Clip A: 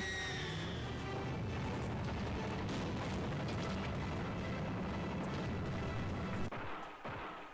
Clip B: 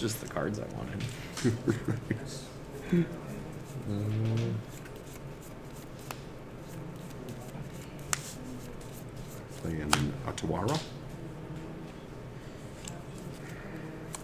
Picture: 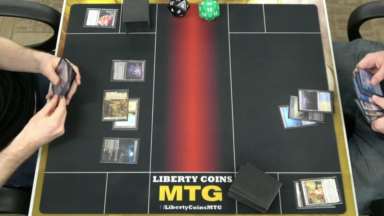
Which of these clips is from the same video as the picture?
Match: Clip B